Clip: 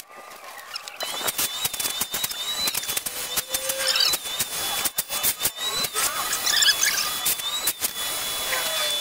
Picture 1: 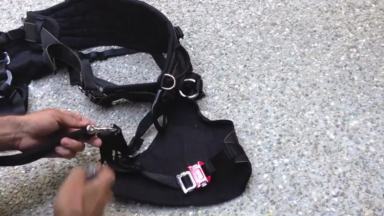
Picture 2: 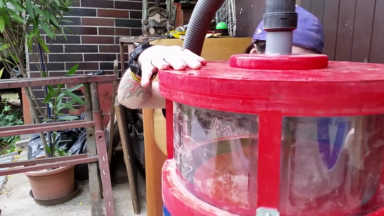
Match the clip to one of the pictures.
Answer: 2